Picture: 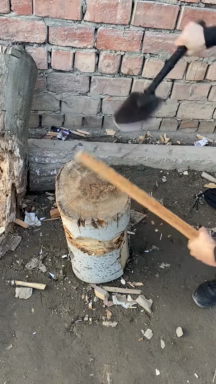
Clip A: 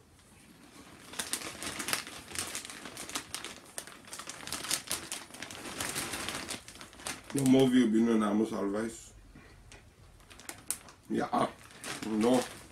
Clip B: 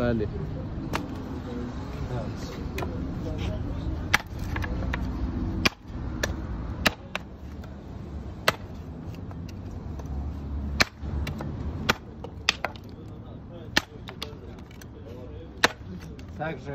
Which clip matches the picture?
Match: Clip B